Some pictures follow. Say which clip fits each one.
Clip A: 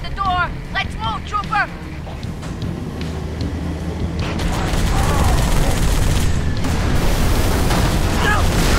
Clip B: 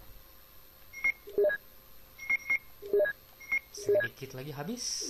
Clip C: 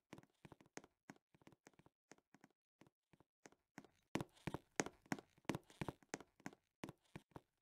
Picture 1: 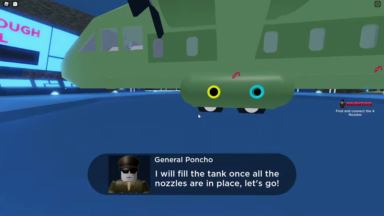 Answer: C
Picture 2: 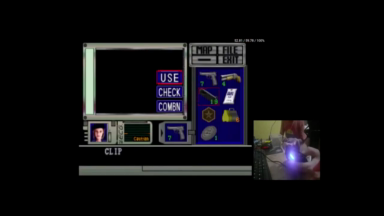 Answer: B